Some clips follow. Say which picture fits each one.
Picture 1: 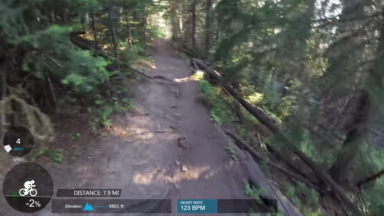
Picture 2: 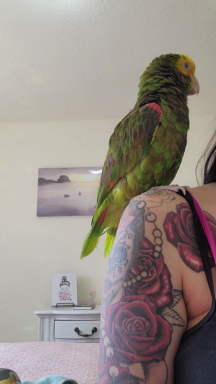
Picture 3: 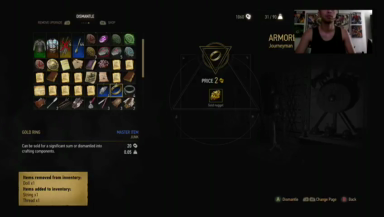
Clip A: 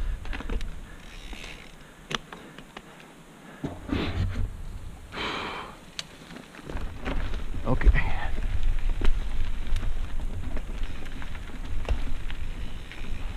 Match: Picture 1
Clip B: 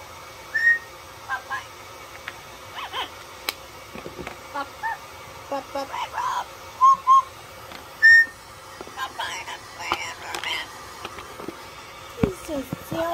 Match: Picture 2